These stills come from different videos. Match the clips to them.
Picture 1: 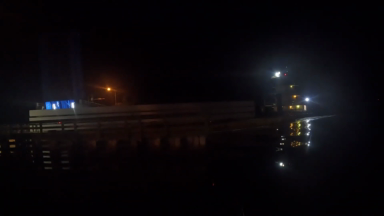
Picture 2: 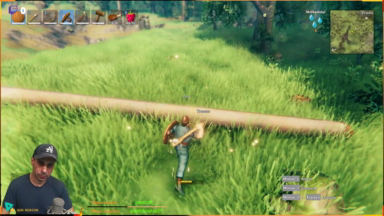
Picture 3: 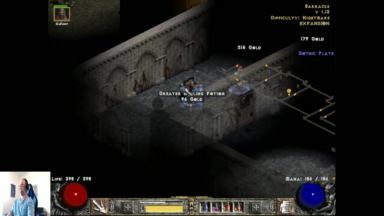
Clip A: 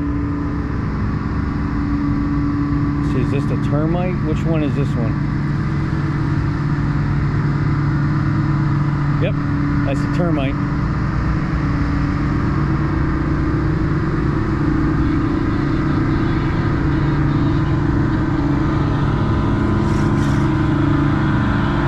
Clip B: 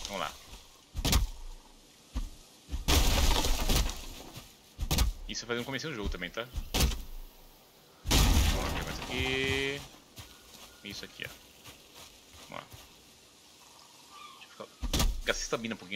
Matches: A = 1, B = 2